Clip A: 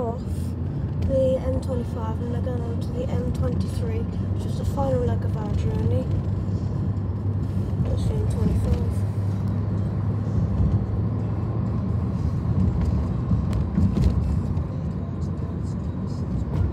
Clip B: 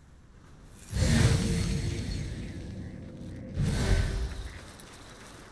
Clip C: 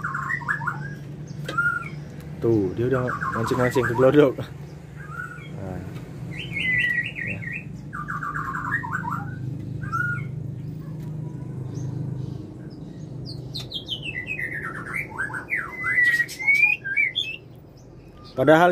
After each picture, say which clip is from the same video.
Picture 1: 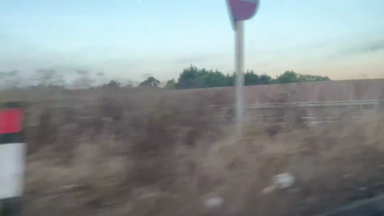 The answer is A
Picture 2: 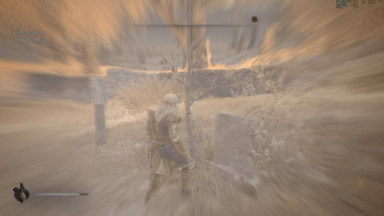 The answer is B